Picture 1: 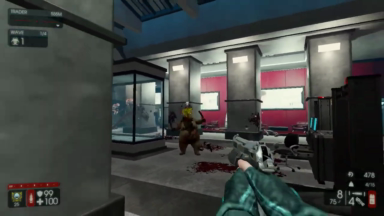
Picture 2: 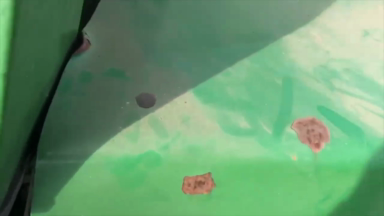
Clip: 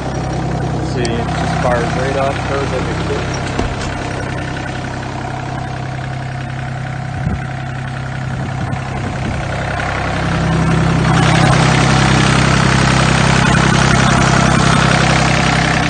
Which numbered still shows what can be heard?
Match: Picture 2